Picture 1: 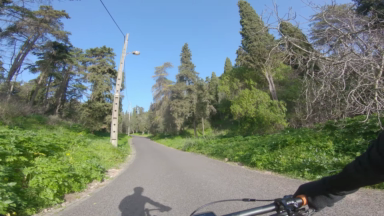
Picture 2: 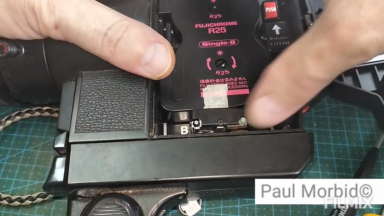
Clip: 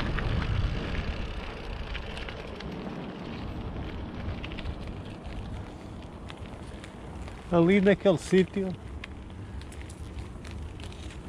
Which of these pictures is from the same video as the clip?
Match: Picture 1